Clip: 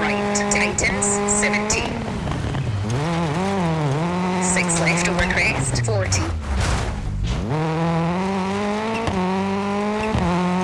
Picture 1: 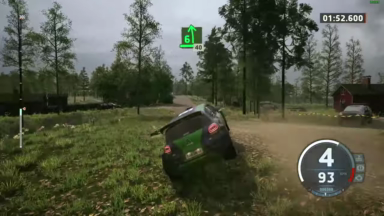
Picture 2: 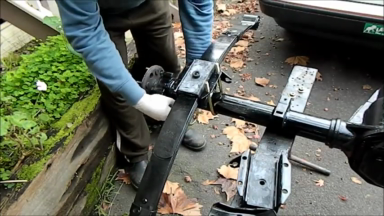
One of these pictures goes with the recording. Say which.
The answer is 1